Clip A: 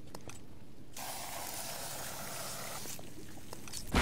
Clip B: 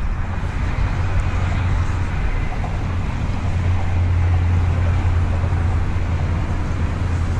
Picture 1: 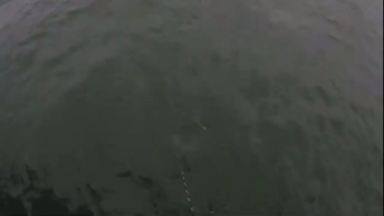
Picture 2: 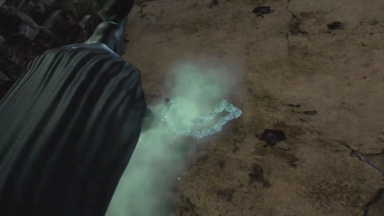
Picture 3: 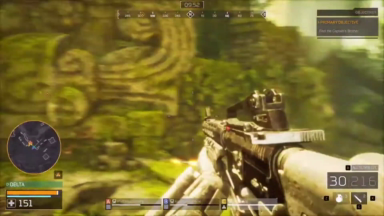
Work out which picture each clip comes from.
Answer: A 2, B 1